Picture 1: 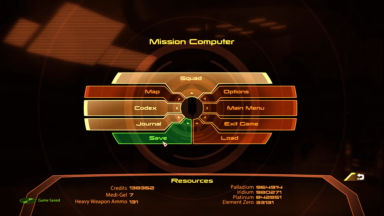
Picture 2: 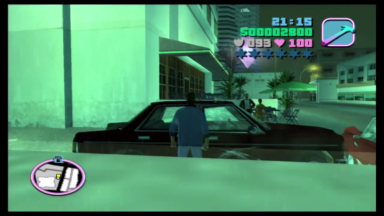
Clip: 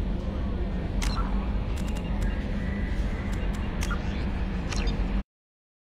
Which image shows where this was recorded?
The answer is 1